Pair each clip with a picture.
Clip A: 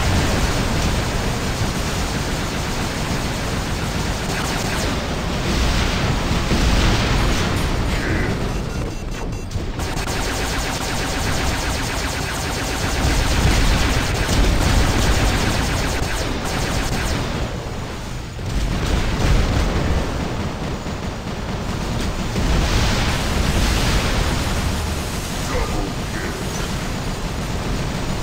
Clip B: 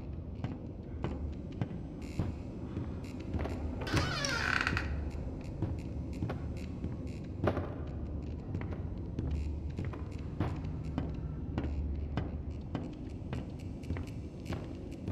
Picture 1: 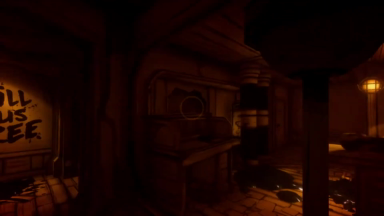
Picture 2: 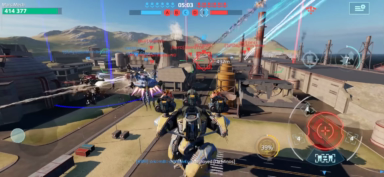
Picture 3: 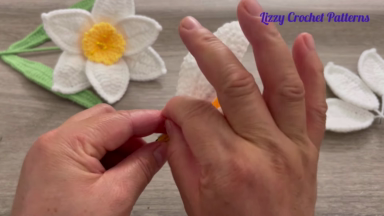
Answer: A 2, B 1